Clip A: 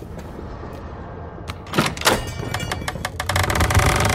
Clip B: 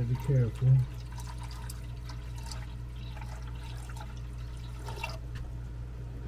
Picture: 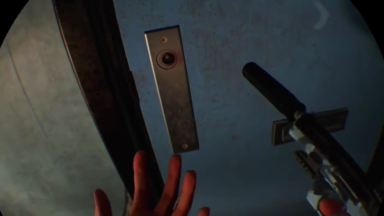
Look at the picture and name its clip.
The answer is A